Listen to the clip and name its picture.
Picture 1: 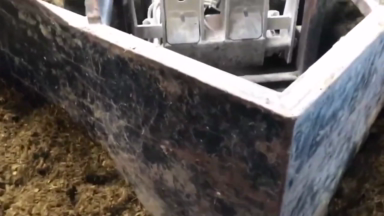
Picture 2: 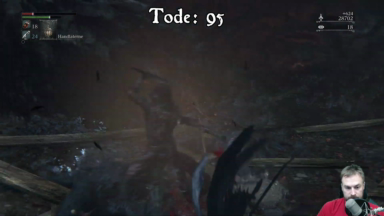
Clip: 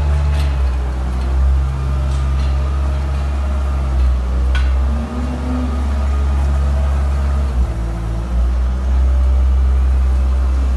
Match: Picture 1